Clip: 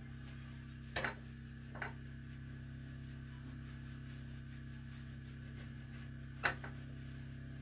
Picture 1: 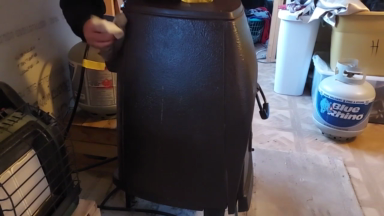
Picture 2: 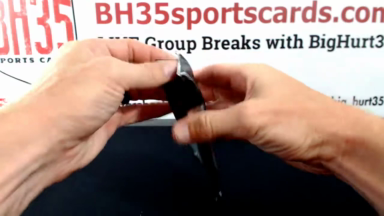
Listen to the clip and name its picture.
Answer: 1